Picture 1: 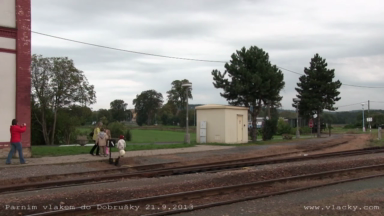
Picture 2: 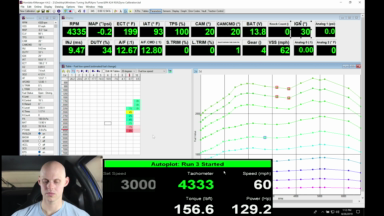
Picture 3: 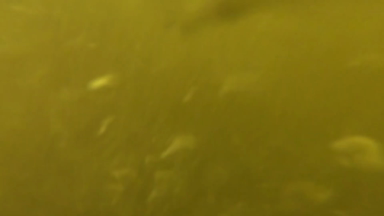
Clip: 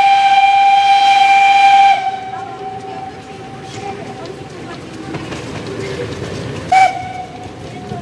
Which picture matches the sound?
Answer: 1